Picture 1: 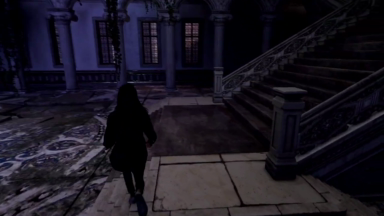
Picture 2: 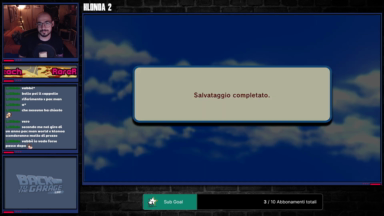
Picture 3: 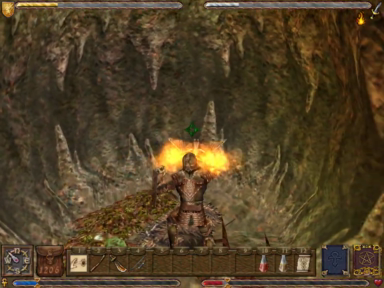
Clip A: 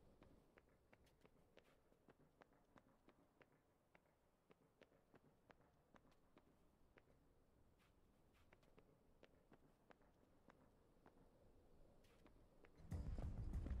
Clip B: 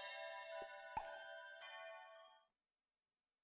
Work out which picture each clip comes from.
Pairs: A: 1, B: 2